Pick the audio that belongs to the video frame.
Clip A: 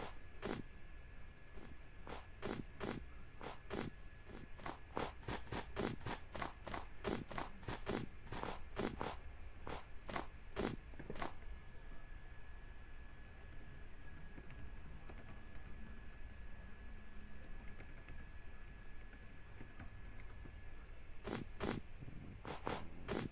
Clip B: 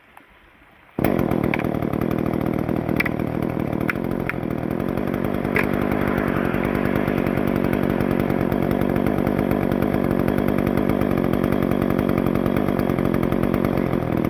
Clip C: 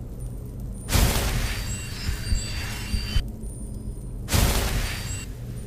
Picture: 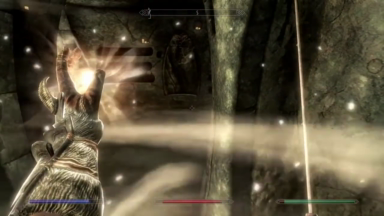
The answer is C